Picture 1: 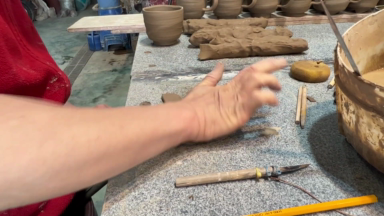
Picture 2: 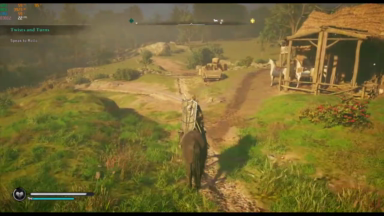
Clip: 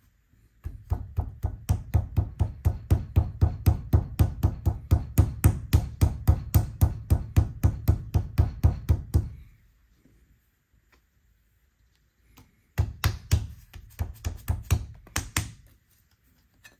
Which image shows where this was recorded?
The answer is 1